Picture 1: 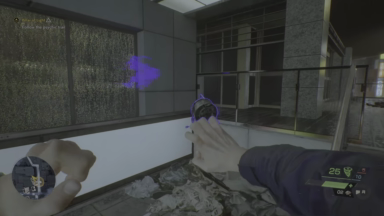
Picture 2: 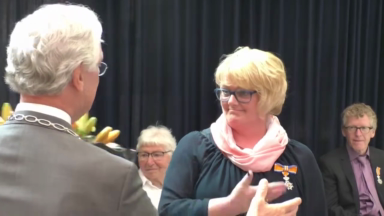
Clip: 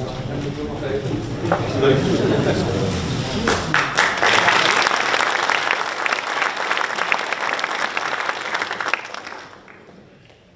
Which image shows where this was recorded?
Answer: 2